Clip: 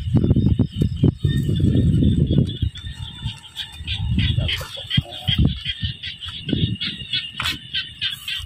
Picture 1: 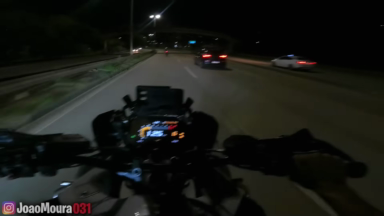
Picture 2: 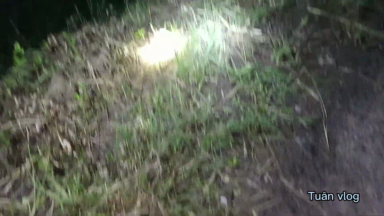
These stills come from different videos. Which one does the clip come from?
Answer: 2